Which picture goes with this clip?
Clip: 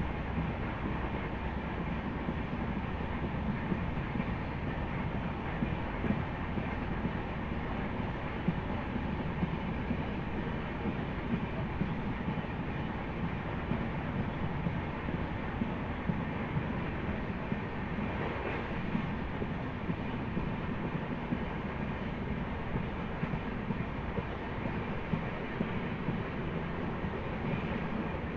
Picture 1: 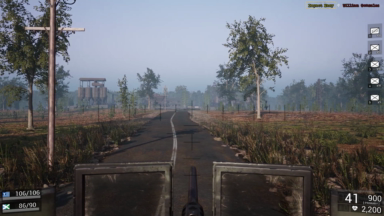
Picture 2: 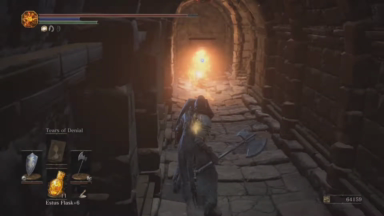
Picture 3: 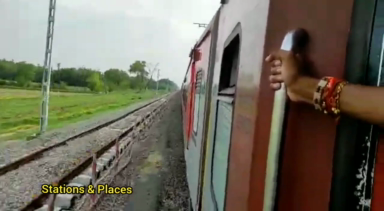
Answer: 3